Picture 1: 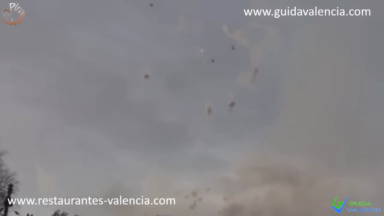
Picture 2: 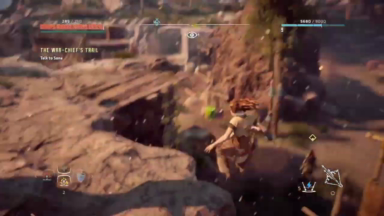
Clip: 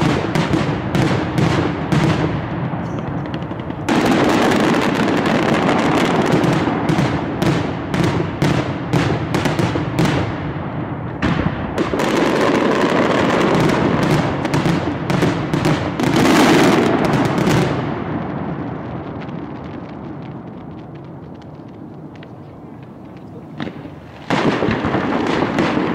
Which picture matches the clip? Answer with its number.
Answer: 1